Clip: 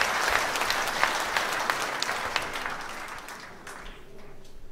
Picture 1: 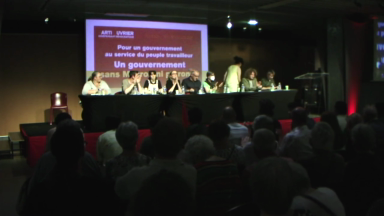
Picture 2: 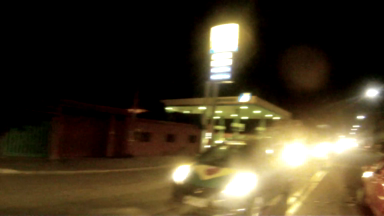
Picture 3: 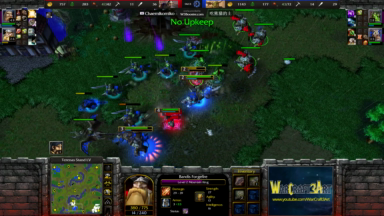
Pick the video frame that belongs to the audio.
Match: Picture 1